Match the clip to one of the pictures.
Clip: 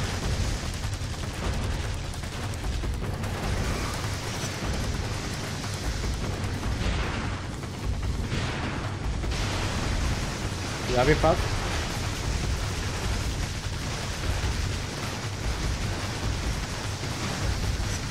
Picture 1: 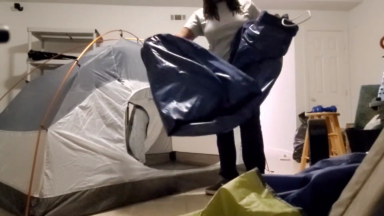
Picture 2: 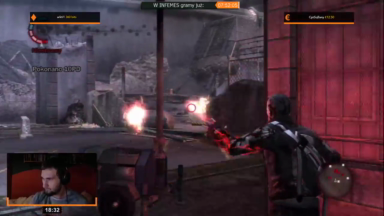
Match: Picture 2